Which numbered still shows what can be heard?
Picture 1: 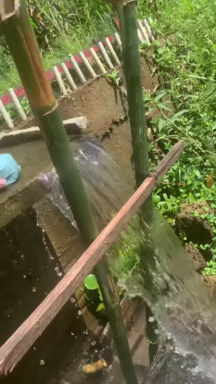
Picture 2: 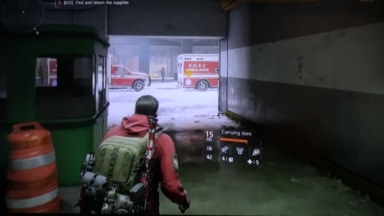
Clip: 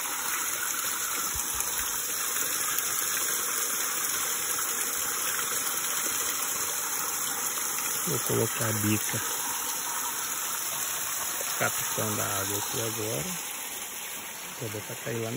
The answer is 1